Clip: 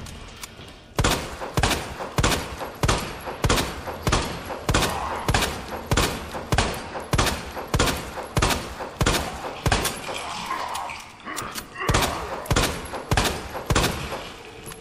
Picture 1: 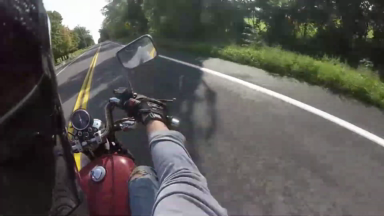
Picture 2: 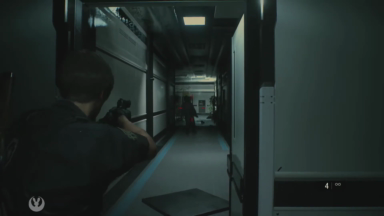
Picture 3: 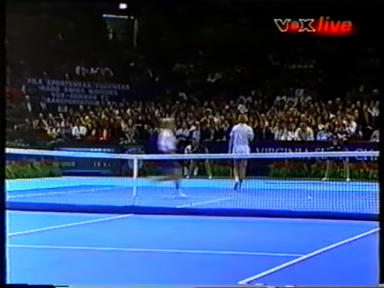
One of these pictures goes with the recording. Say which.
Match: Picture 2